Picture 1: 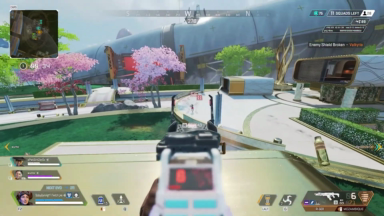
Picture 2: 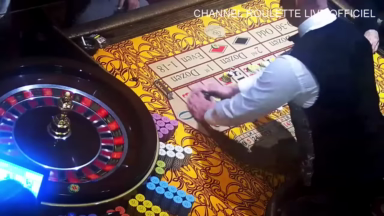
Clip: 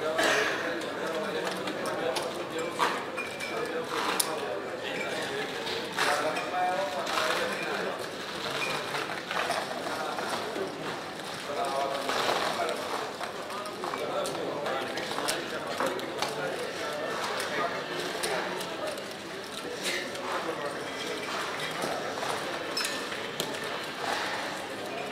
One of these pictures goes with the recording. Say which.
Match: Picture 2